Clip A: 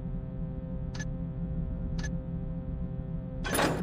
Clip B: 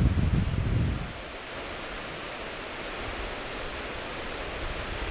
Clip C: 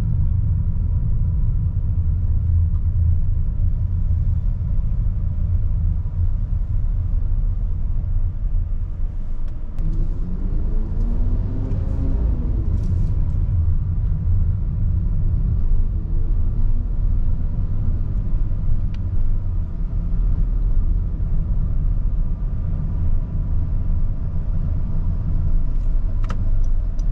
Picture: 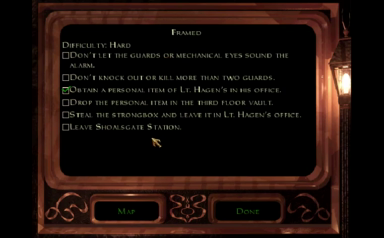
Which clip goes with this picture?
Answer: A